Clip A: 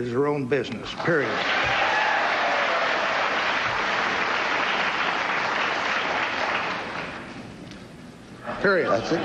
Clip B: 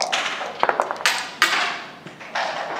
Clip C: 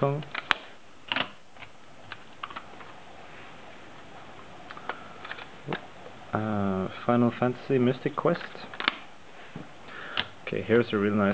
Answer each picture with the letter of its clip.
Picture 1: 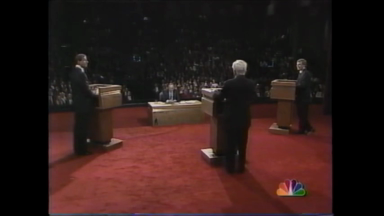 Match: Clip A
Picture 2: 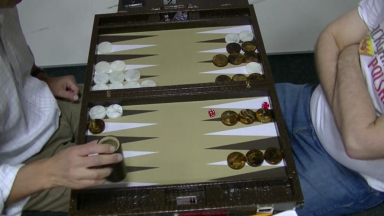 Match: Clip B